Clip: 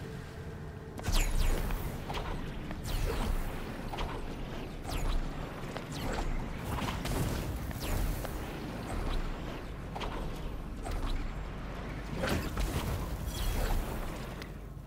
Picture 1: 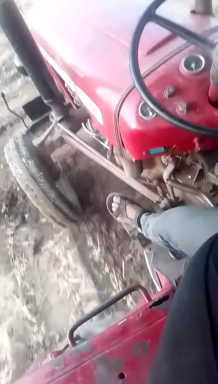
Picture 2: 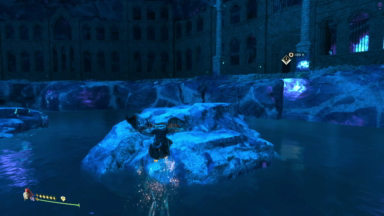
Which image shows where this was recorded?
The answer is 2